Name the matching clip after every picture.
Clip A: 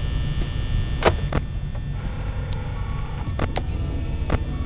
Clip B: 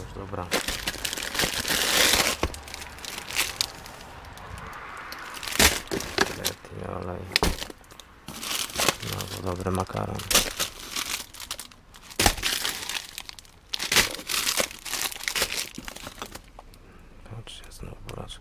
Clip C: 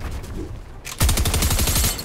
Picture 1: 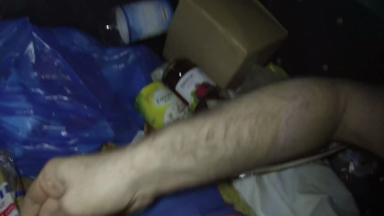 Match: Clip B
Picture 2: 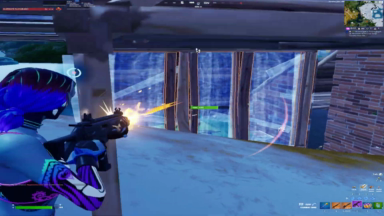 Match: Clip C